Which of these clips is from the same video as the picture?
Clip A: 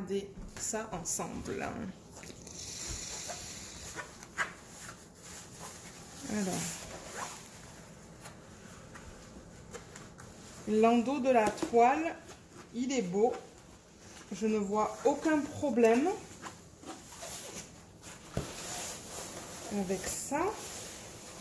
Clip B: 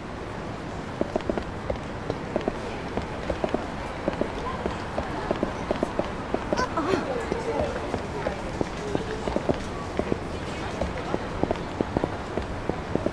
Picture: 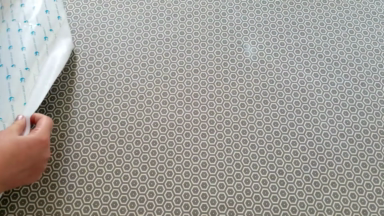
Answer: A